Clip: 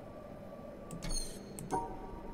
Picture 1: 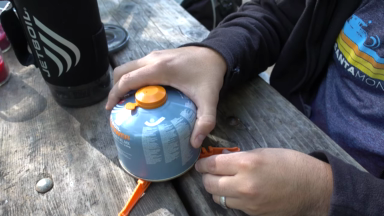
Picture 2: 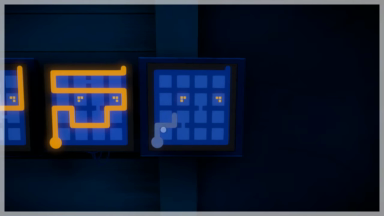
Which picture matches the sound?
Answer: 2